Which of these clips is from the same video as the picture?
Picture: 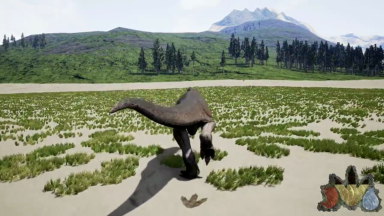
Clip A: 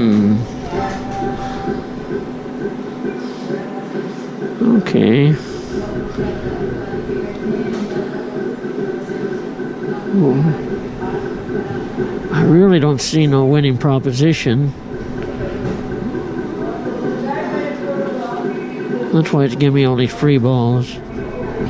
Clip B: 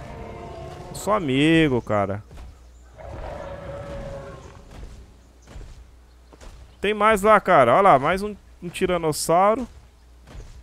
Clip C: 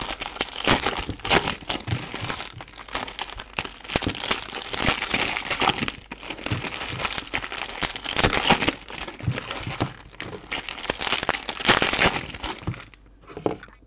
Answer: B